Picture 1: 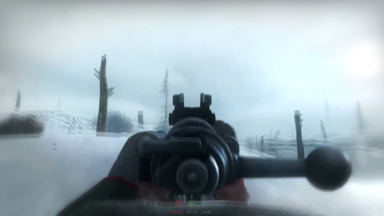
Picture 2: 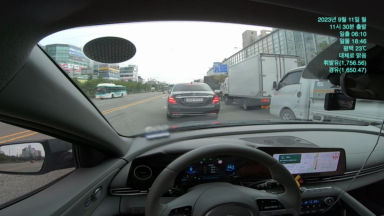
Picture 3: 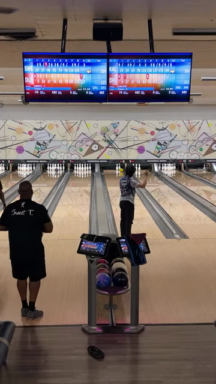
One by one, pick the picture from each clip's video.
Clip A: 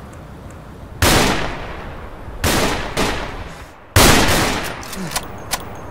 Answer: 1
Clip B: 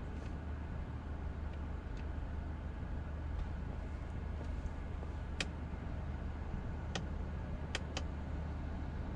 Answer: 2